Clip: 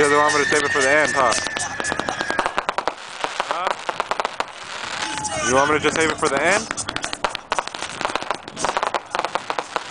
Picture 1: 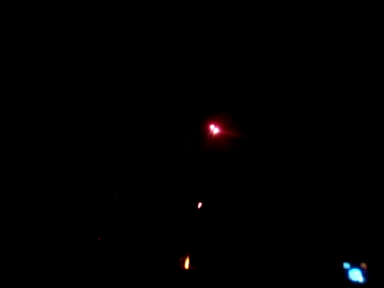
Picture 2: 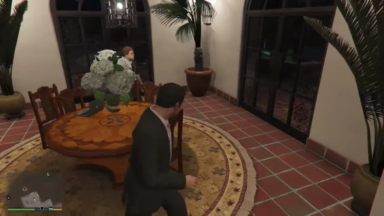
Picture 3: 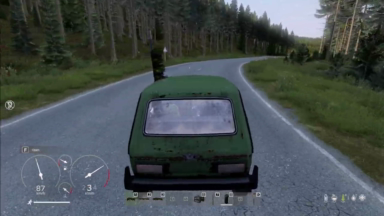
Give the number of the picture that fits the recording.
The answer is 1